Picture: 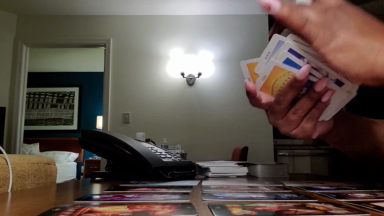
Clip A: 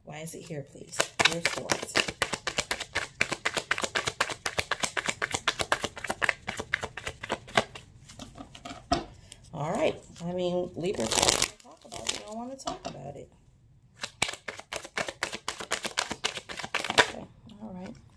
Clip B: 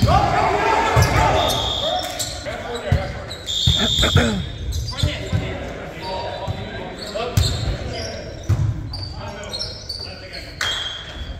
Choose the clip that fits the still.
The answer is A